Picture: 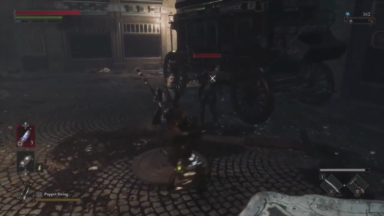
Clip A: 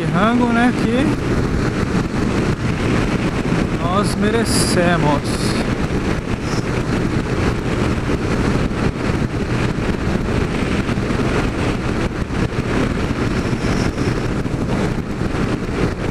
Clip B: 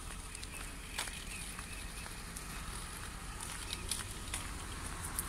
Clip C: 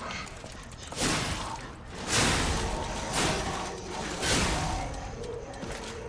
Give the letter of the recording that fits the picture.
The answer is C